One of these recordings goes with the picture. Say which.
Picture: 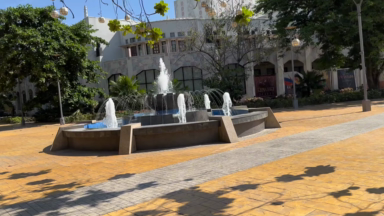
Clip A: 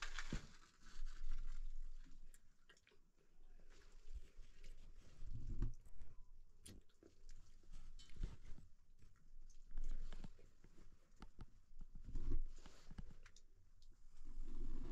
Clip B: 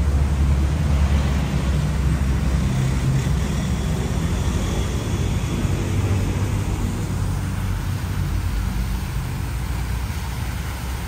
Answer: B